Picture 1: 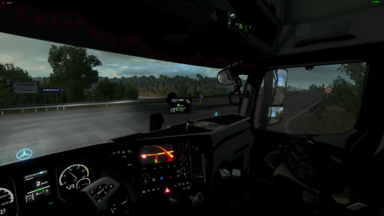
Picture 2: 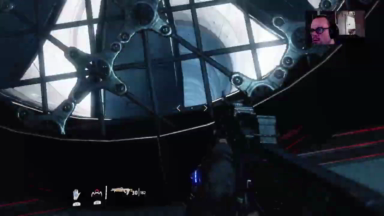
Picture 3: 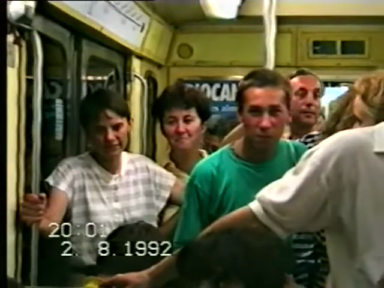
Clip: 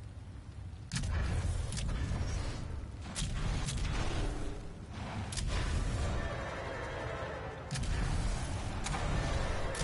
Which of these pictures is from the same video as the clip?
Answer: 2